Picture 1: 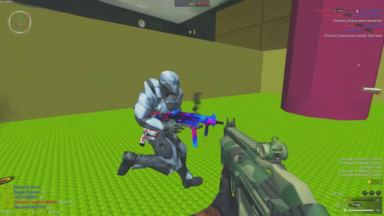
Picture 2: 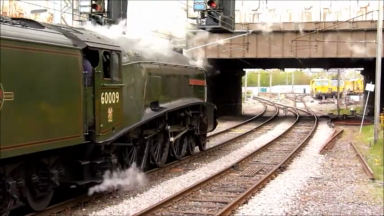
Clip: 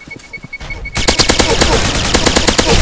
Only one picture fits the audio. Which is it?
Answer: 1